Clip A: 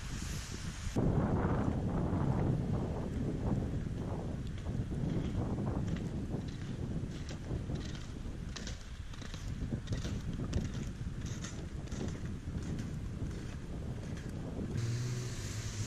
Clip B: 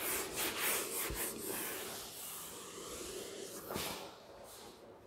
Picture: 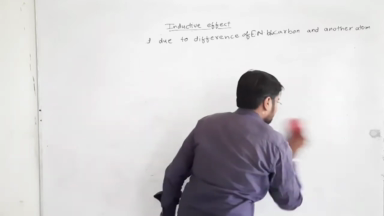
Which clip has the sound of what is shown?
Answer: B